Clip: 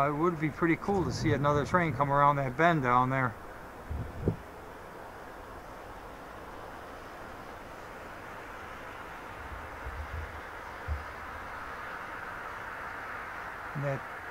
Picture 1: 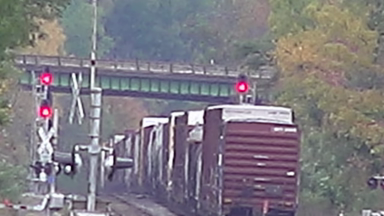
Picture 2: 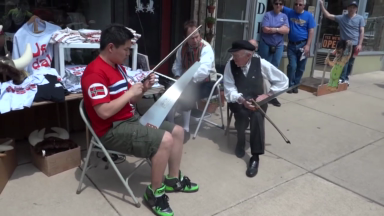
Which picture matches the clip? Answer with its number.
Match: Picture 1